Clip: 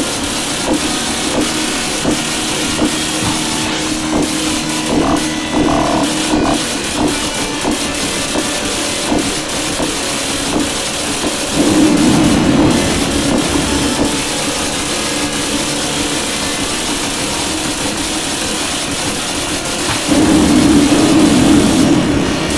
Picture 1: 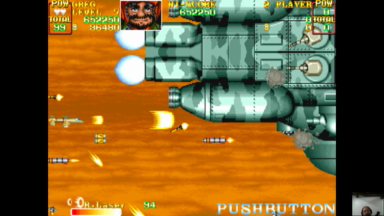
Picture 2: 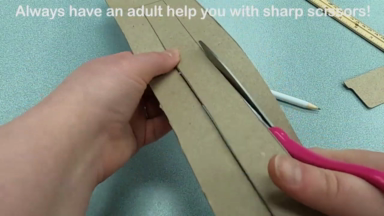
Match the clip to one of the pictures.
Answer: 1